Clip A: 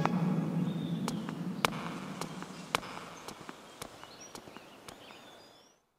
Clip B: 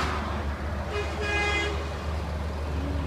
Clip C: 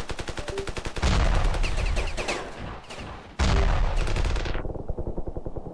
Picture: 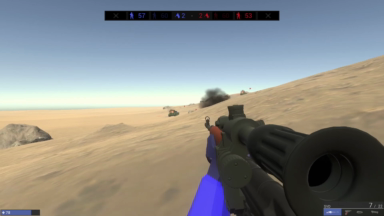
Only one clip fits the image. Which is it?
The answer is C